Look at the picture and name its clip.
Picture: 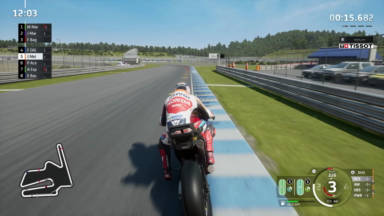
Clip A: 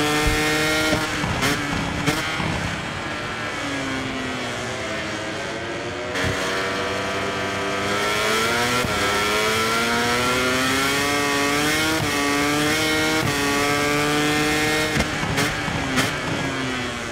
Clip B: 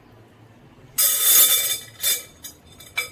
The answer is A